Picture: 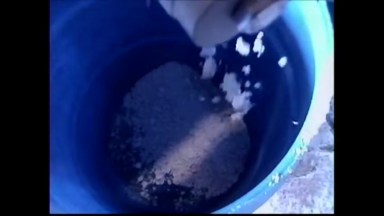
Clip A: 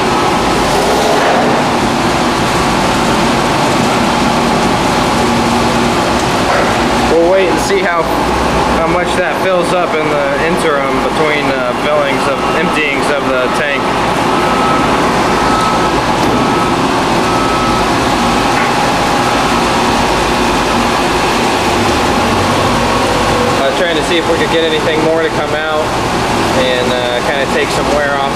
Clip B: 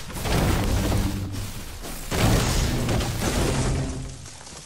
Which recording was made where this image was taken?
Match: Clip A